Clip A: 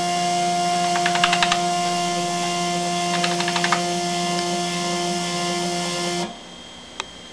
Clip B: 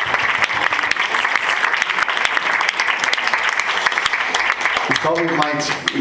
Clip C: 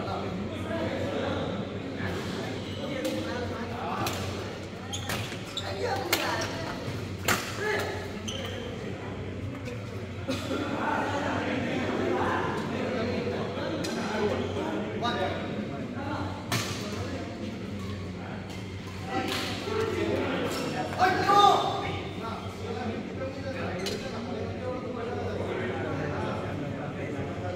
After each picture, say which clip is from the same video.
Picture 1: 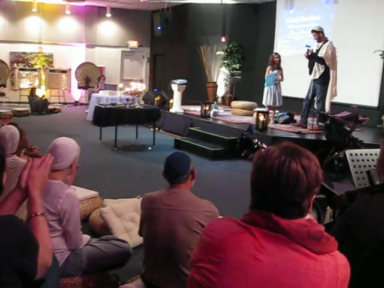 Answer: B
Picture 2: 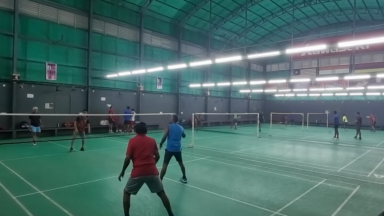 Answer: C